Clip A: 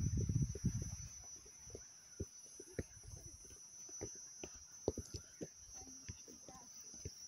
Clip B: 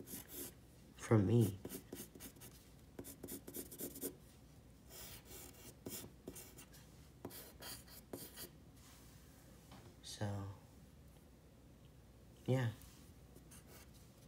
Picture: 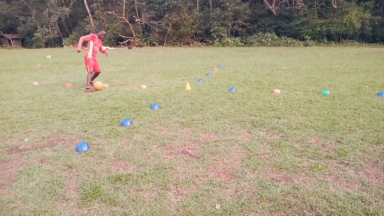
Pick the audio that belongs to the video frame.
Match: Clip A